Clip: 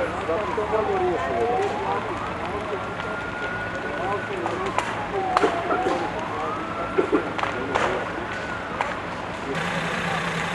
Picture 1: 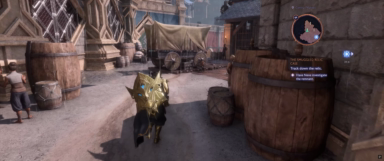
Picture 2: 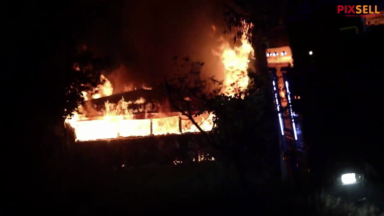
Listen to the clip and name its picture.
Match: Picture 2